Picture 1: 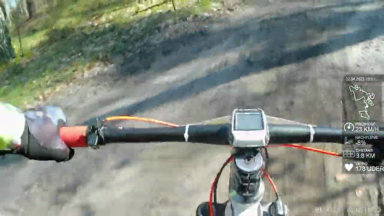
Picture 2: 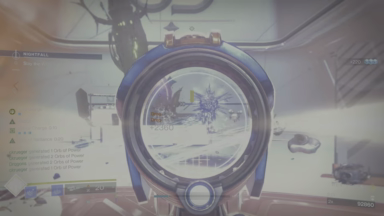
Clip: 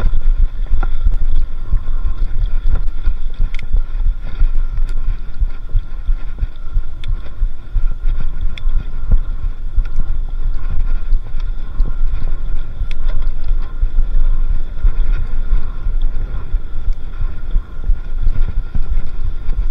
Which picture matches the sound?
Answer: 1